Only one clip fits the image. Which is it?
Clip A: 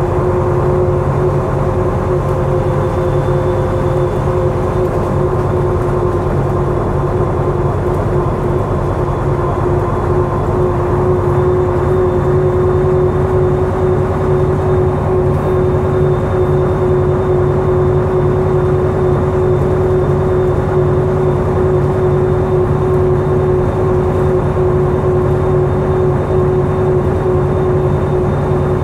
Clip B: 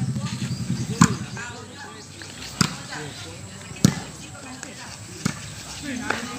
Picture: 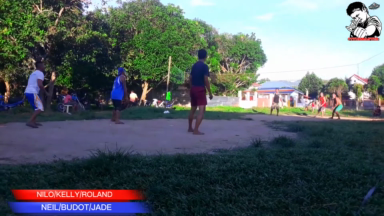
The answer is B